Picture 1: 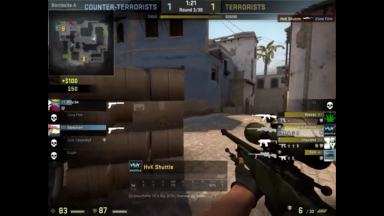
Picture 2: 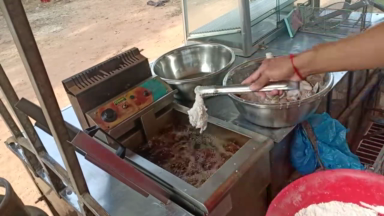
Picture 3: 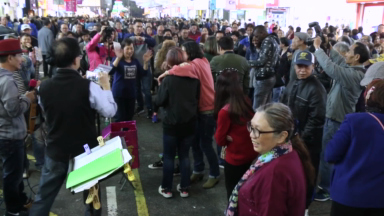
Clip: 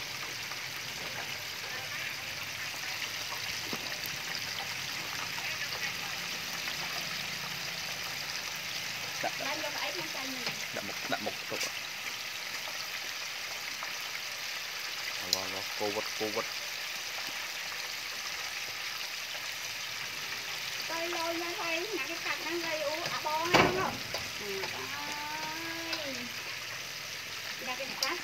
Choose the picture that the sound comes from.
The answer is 2